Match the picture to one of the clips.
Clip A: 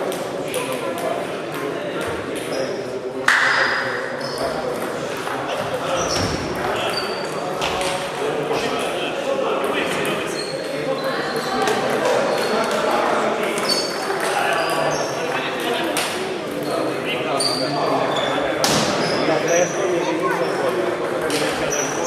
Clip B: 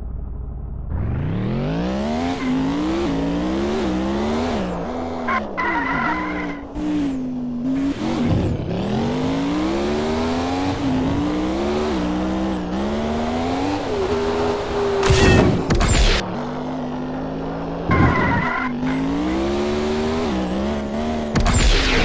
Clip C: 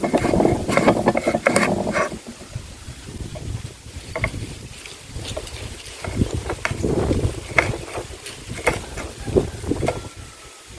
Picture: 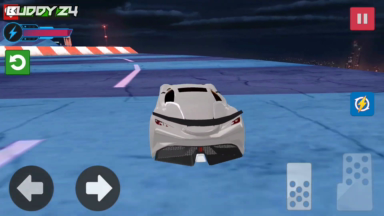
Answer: B